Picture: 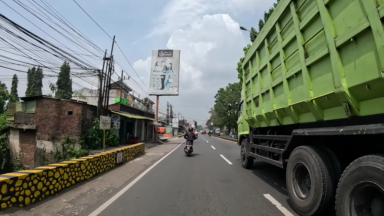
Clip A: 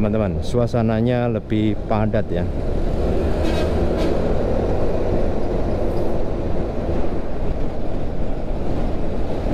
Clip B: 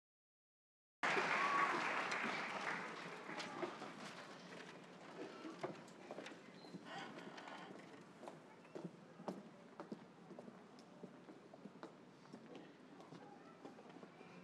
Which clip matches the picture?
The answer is A